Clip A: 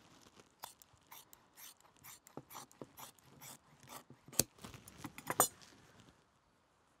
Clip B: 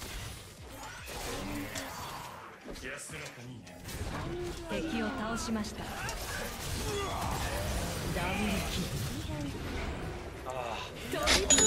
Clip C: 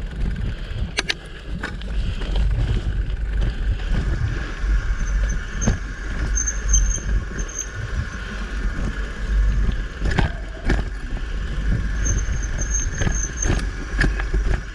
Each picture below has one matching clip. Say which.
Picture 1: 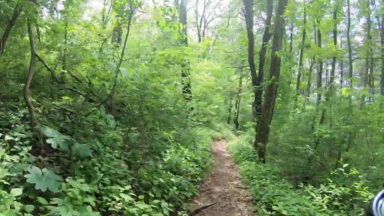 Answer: C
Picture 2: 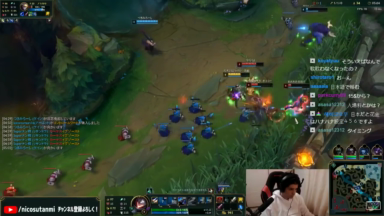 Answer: B